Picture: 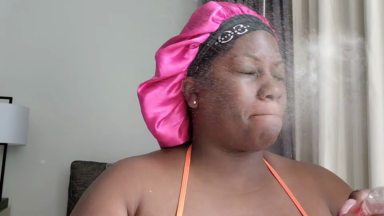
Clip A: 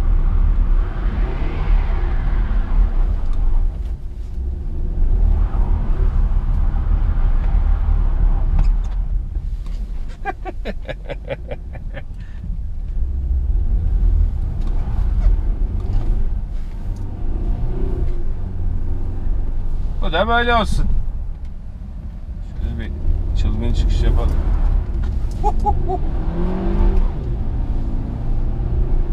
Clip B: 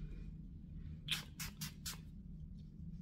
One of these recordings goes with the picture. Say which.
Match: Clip B